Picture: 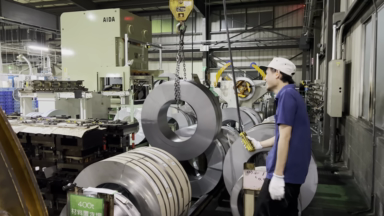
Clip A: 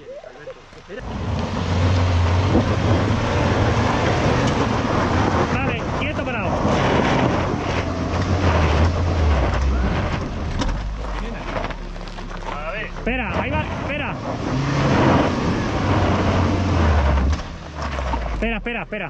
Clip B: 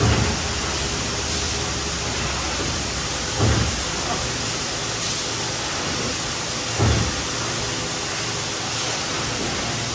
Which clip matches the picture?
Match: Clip B